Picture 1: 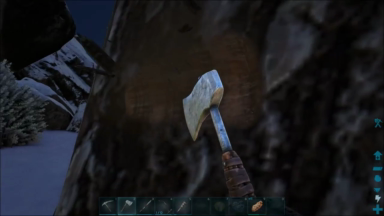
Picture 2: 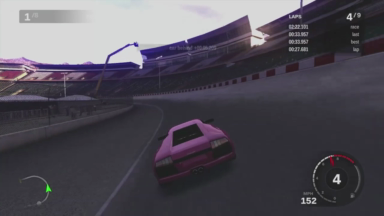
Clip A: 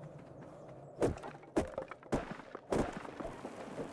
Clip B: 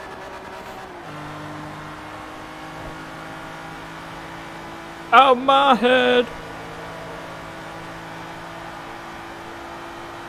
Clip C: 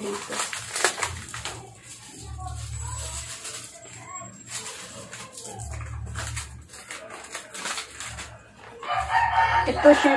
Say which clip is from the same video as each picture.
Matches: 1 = A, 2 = B